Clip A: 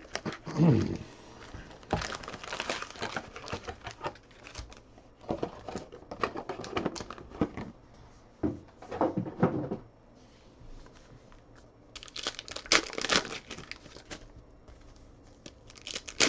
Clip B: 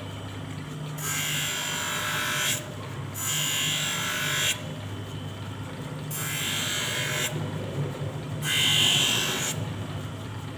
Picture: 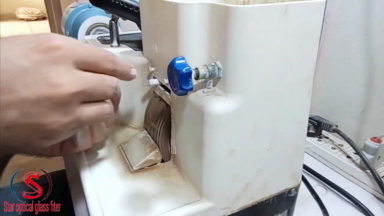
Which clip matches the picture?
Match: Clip B